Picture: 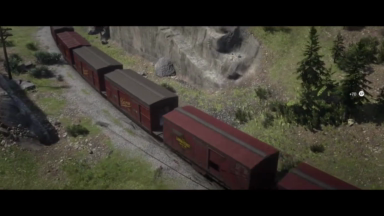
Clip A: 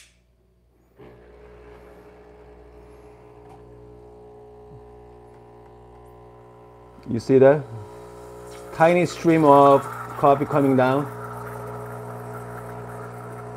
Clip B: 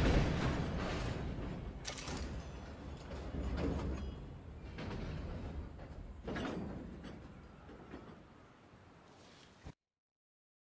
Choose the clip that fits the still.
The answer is B